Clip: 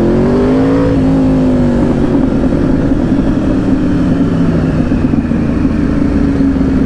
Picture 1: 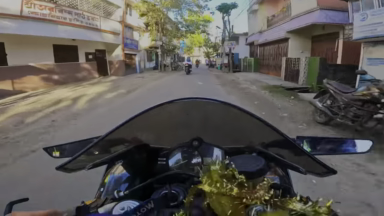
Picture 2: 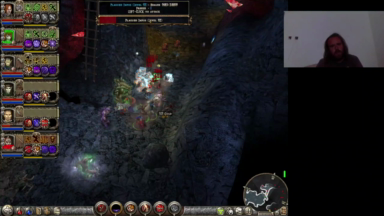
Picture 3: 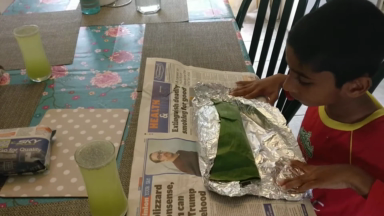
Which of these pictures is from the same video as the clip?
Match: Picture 1